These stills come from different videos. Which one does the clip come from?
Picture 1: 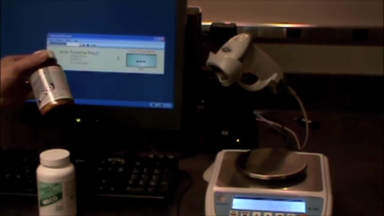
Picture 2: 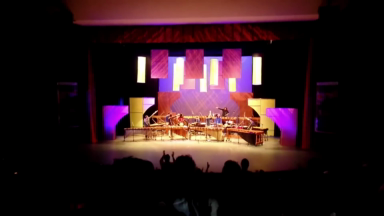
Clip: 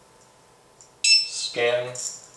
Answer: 1